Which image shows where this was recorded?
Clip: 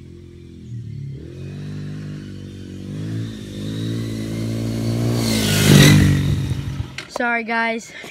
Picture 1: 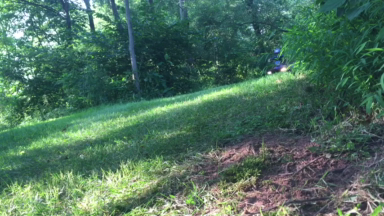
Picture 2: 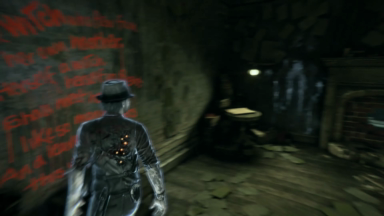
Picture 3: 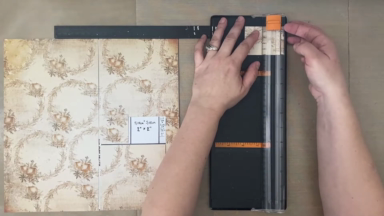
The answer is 1